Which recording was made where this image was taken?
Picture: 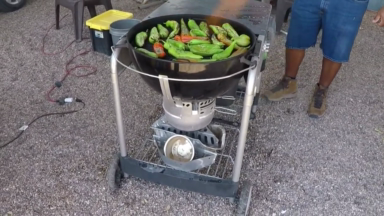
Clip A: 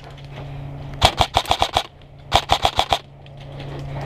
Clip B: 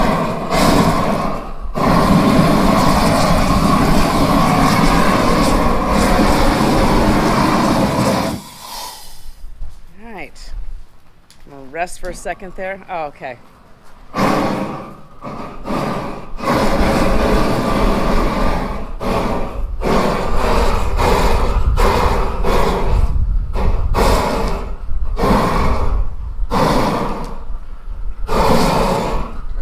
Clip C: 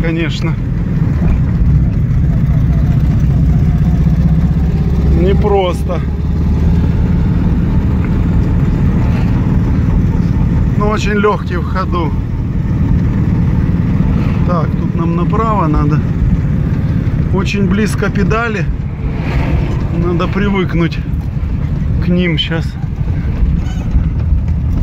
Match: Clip B